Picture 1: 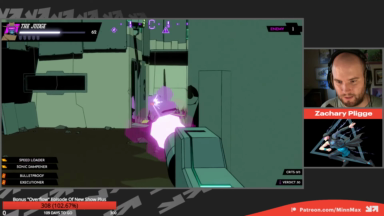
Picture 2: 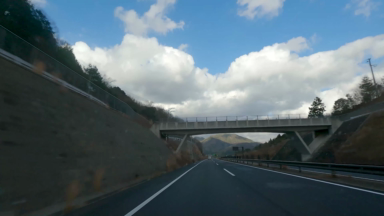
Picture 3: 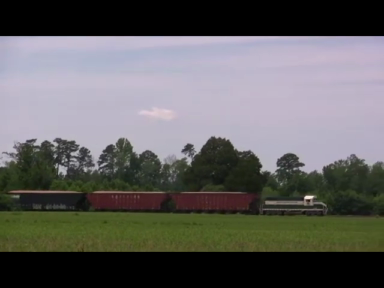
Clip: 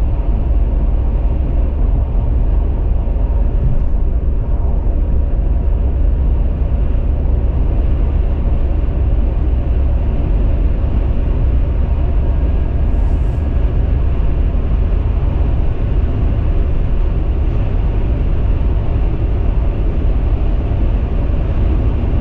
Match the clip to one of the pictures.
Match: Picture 2